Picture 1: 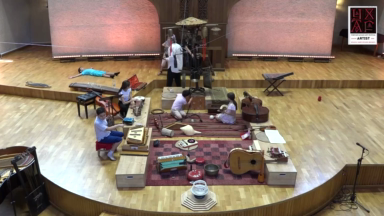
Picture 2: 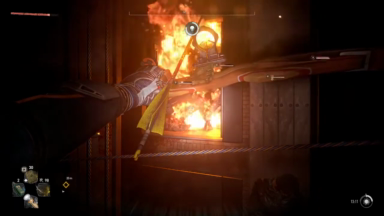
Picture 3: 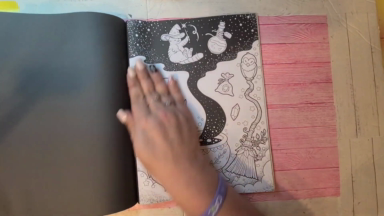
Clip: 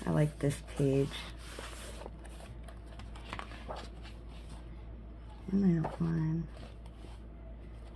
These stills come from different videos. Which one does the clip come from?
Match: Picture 3